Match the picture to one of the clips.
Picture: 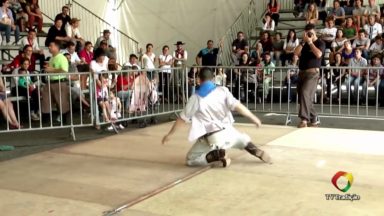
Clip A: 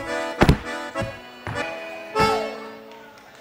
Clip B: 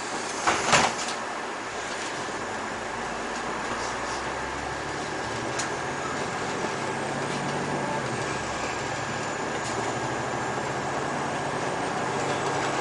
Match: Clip A